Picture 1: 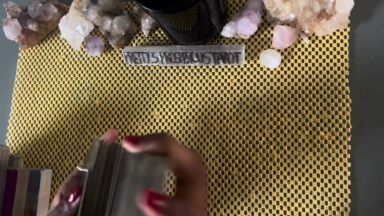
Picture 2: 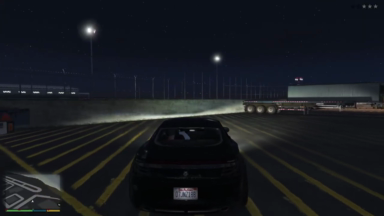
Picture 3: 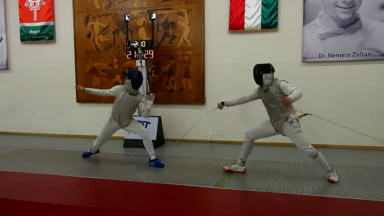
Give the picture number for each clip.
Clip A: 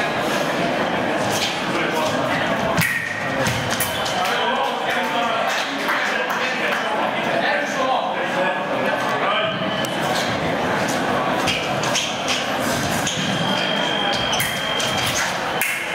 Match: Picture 3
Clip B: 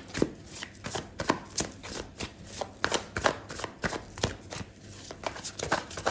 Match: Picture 1